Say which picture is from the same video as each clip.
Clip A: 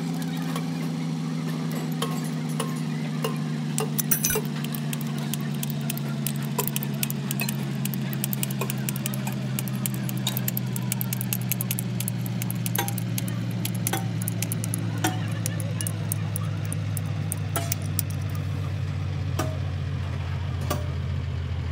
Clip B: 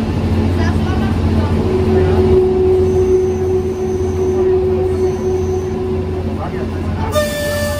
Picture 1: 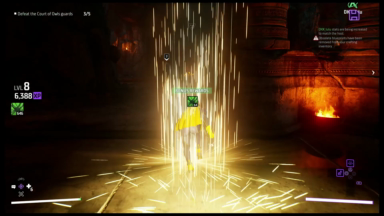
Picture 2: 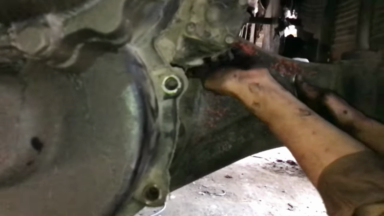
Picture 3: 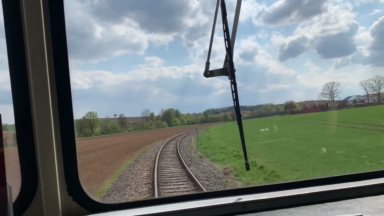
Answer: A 2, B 3